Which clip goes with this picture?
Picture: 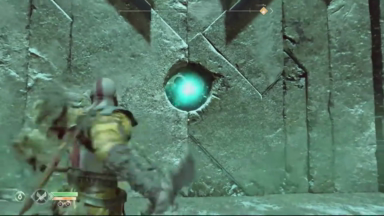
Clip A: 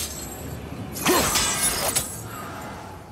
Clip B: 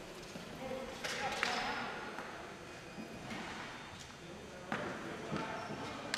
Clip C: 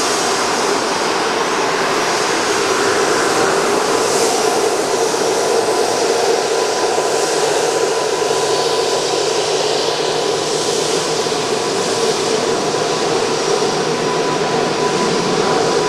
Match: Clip A